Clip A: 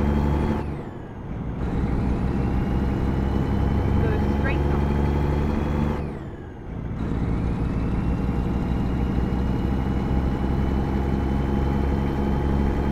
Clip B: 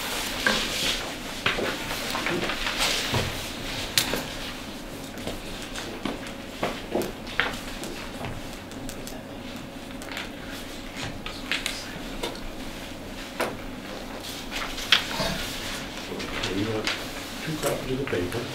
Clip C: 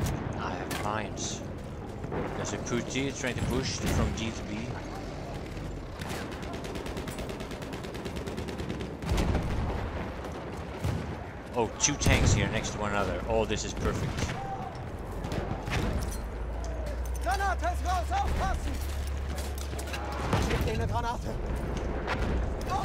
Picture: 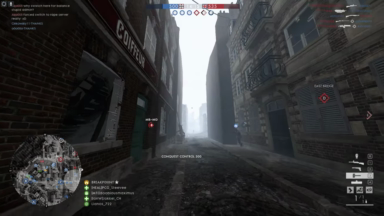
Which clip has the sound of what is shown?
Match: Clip C